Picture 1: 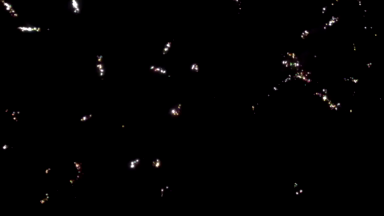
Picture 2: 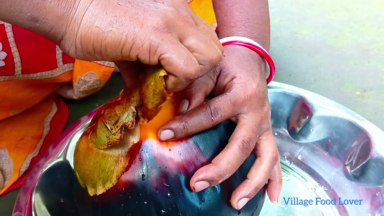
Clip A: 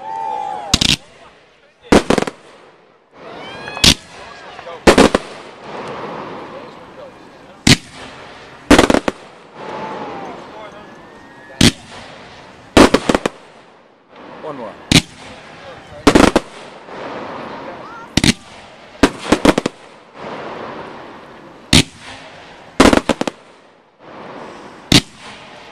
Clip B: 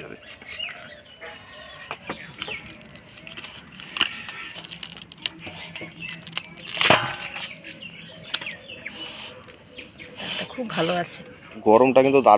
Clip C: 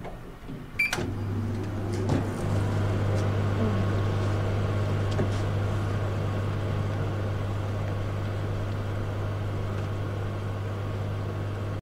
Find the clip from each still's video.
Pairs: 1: A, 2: B